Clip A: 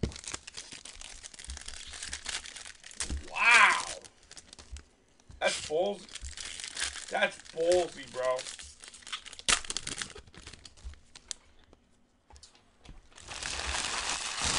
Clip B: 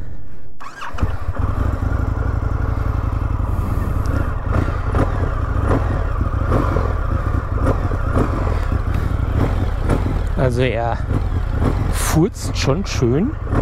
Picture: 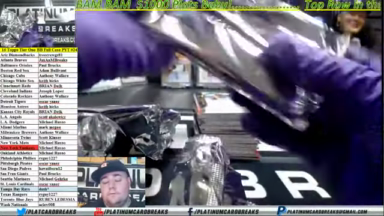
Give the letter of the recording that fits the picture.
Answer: A